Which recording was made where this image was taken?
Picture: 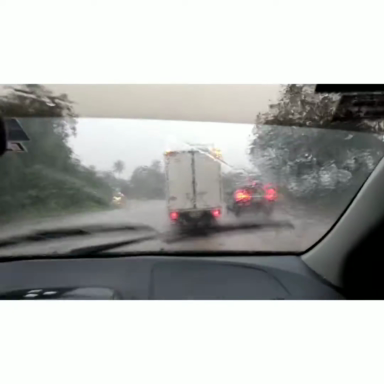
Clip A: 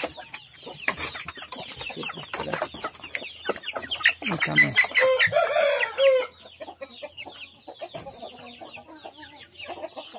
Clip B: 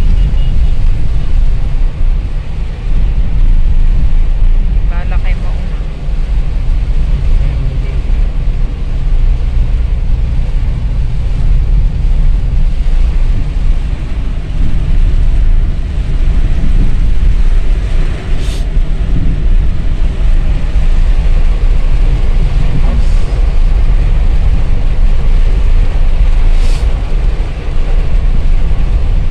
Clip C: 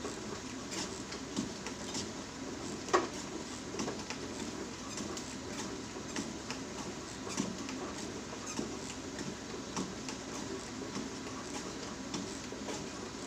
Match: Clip B